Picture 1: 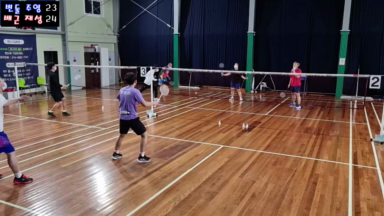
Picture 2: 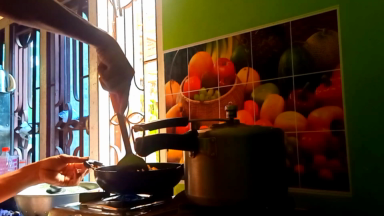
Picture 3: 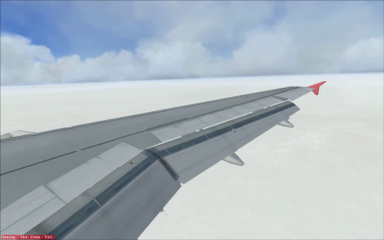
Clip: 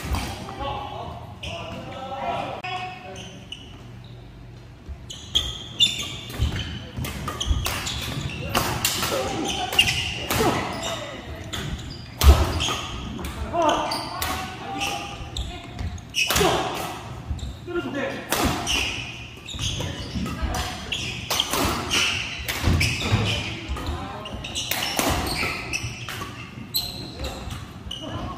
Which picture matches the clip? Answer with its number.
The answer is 1